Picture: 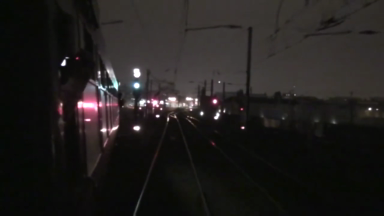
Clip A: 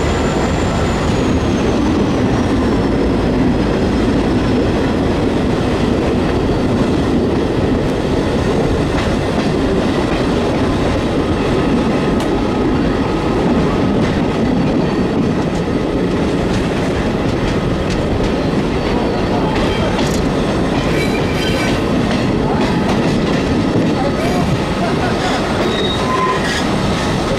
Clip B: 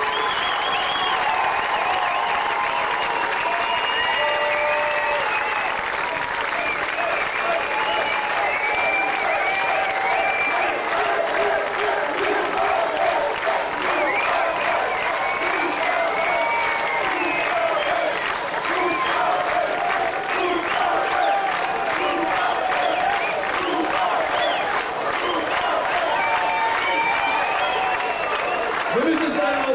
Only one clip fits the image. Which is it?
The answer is A